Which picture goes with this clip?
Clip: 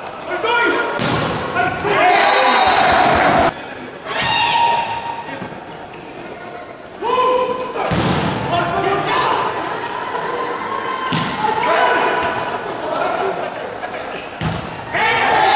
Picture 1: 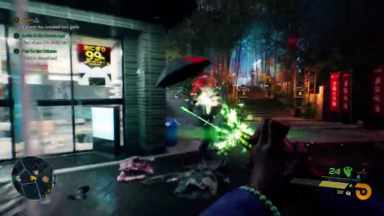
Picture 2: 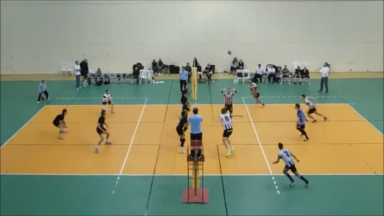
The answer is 2